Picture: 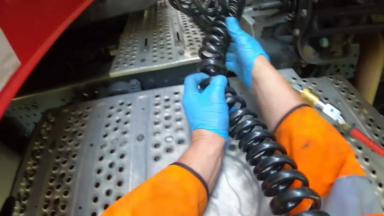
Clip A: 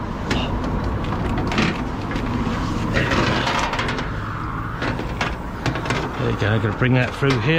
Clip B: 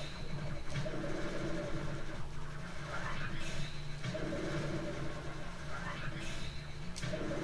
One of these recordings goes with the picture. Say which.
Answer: A